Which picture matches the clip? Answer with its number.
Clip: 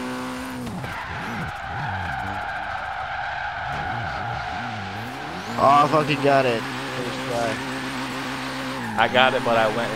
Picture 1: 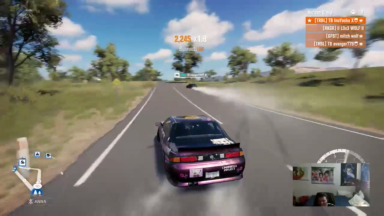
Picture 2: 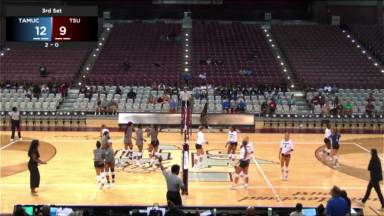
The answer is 1